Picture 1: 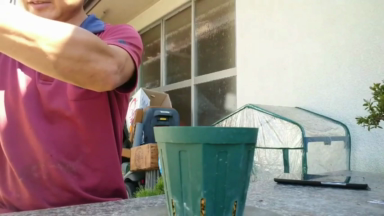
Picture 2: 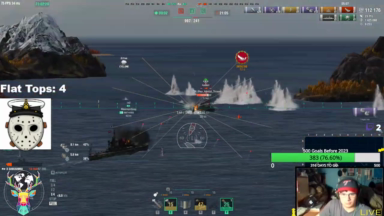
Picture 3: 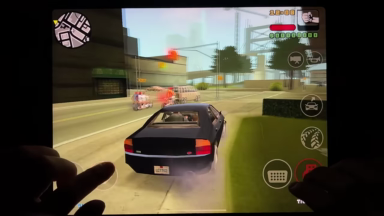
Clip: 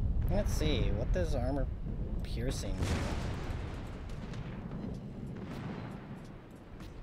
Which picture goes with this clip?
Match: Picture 2